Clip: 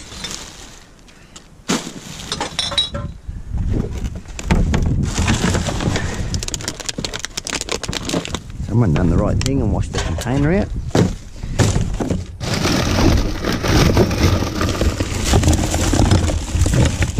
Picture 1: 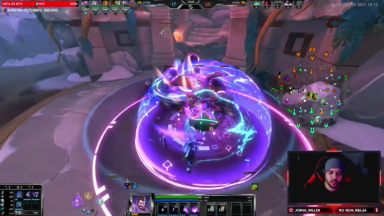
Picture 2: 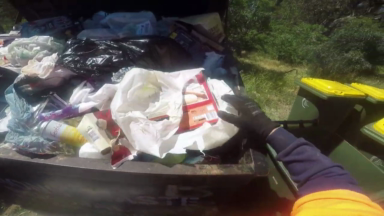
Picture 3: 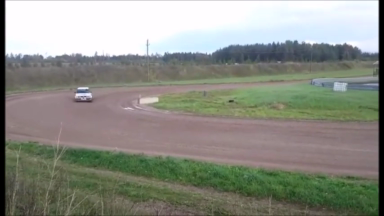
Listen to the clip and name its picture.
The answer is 2